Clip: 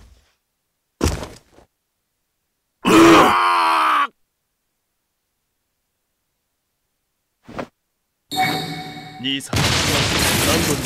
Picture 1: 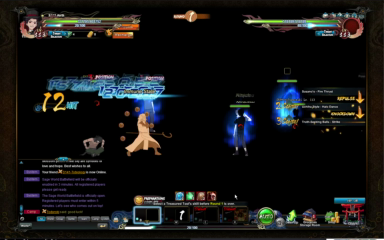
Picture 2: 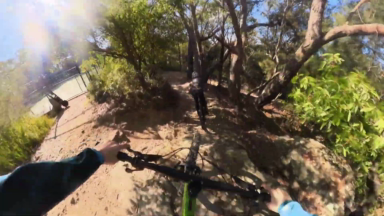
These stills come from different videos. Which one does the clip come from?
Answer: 1